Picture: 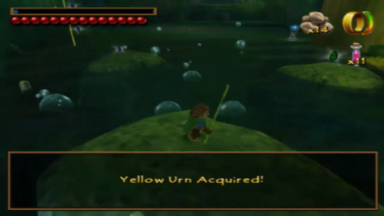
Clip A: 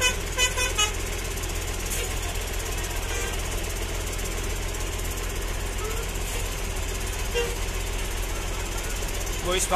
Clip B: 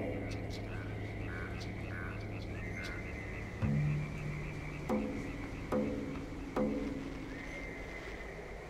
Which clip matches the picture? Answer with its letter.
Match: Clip B